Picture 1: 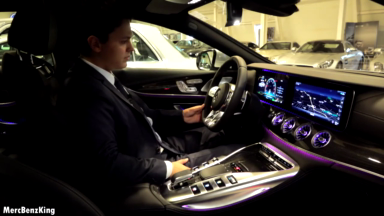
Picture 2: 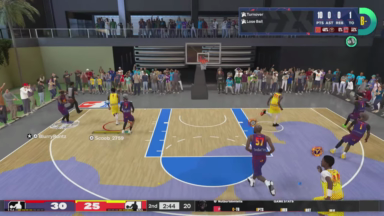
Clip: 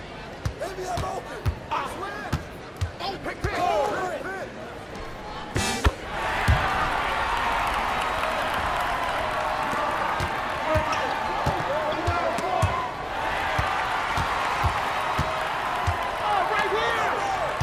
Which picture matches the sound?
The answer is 2